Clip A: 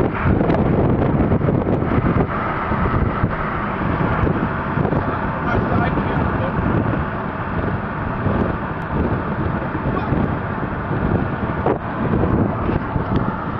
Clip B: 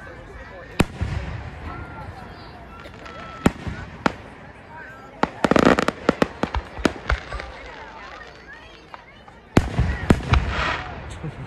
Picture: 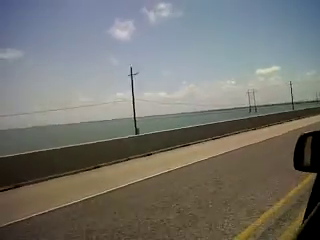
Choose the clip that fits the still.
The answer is A